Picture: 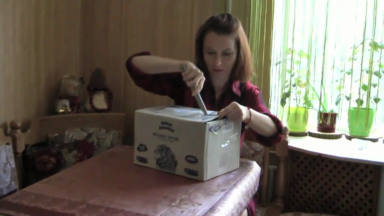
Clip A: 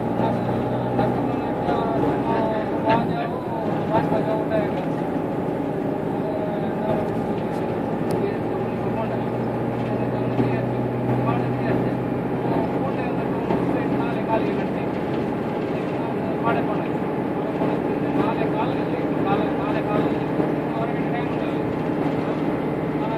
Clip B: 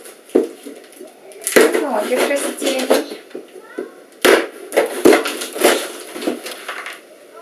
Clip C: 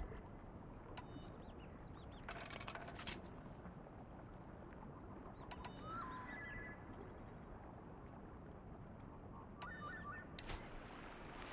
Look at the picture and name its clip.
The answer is B